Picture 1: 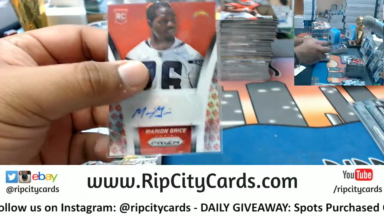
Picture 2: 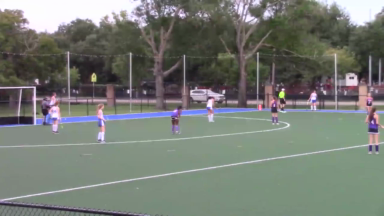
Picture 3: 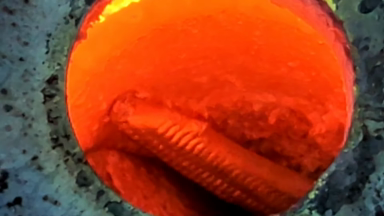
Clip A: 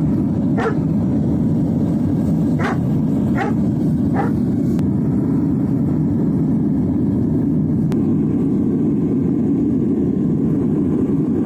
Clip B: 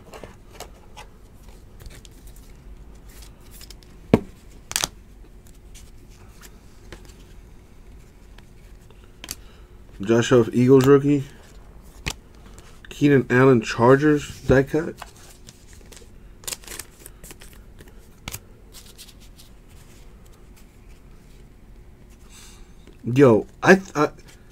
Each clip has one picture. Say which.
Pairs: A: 3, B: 1